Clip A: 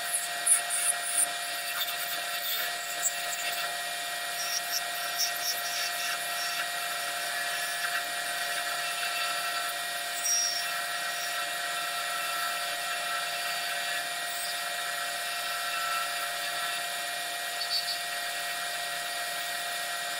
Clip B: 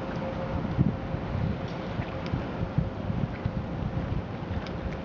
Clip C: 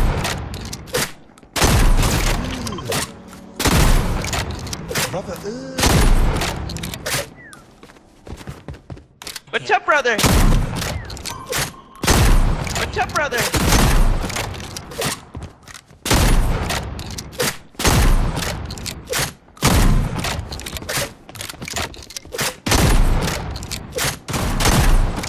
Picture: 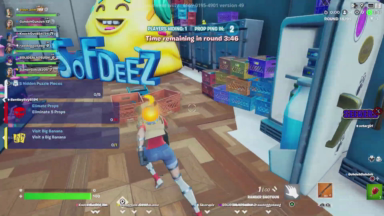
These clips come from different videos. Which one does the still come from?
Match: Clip C